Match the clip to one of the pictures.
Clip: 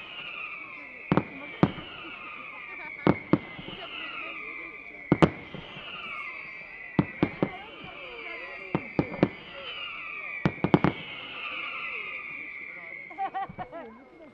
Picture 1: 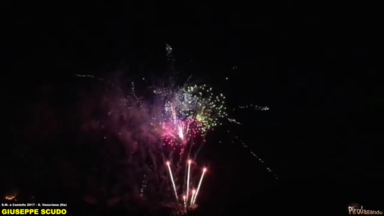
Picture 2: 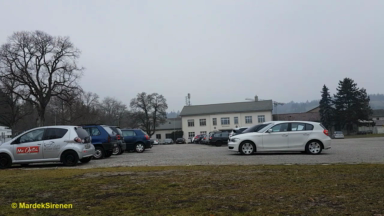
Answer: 1